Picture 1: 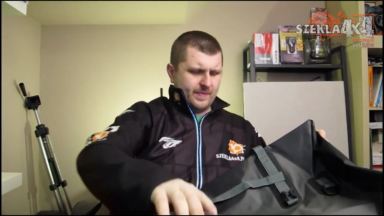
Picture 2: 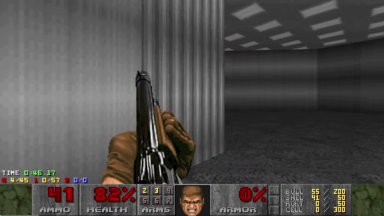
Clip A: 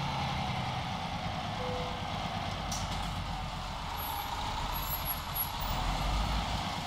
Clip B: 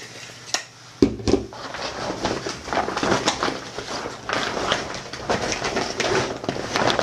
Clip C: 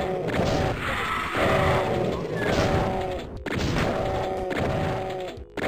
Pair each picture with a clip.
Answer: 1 B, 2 C